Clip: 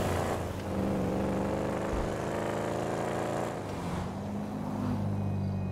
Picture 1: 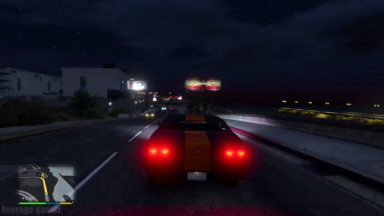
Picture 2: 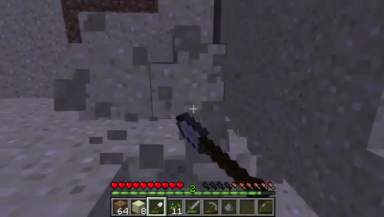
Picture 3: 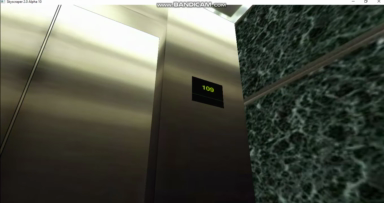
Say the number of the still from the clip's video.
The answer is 1